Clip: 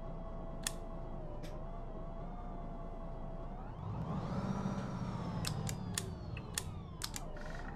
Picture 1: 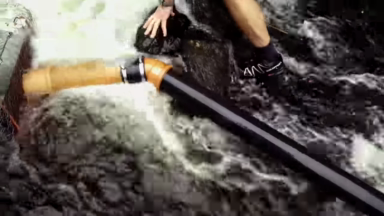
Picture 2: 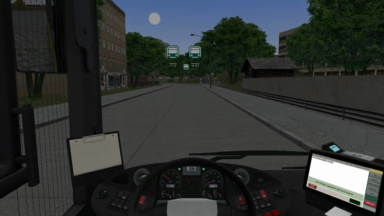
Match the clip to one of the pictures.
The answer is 2